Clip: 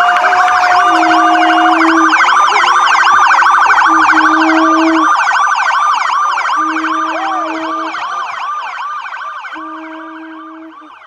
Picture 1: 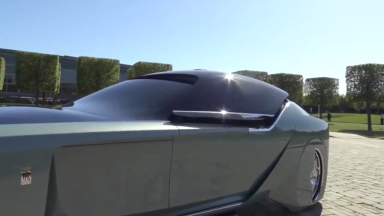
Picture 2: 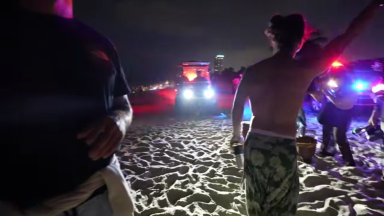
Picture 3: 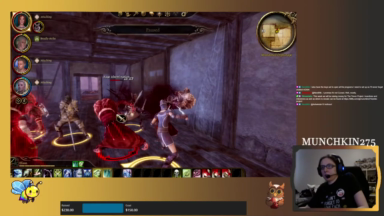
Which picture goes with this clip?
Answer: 2